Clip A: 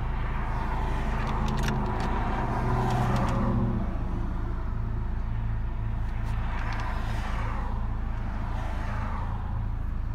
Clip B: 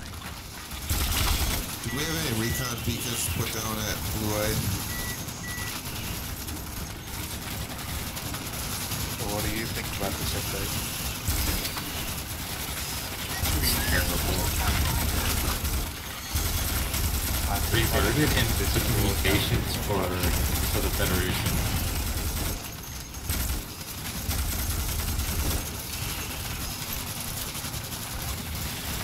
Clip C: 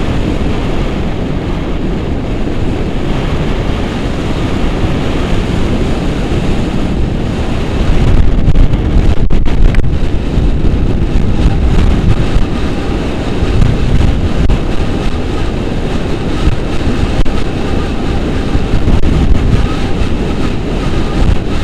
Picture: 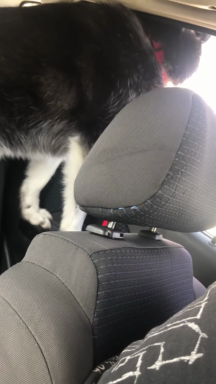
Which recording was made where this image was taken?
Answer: A